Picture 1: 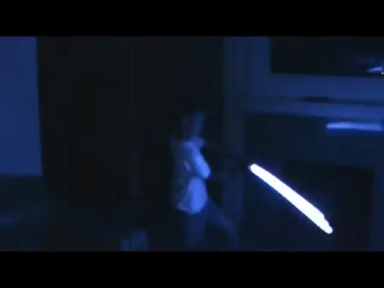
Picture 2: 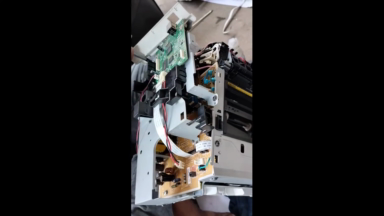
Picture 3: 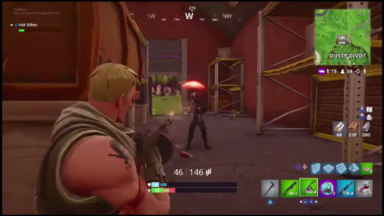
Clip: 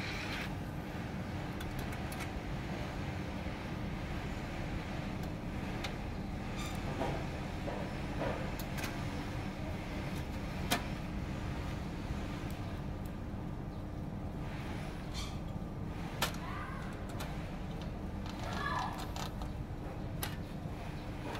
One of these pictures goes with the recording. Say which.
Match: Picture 2